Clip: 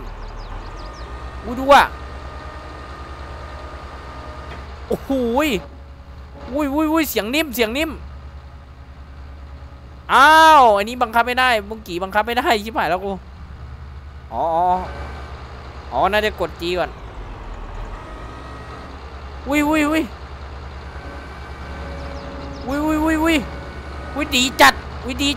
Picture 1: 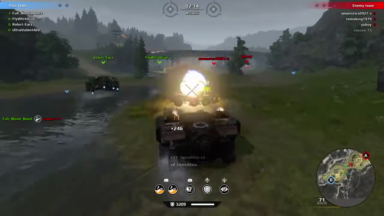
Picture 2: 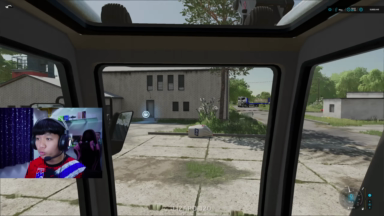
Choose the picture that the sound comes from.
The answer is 2